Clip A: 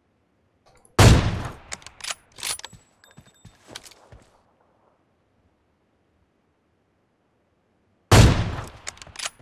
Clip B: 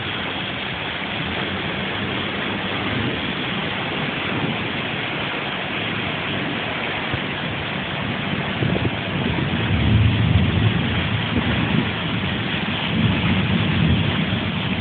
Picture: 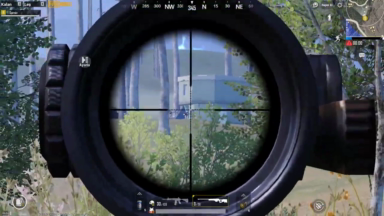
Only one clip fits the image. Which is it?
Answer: A